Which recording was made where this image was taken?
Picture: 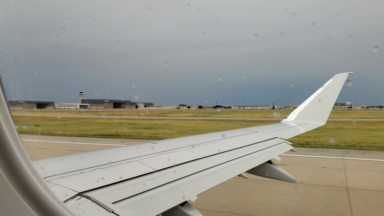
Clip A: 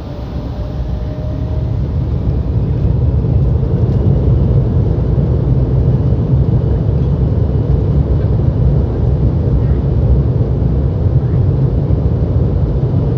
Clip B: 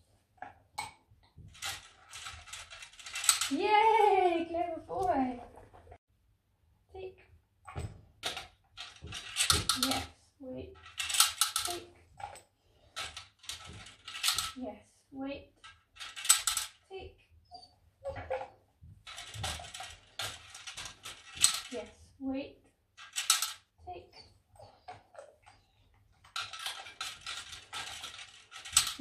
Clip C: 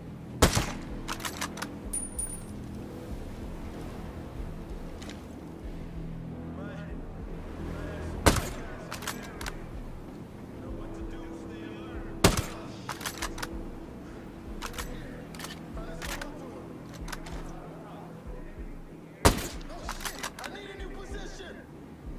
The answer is A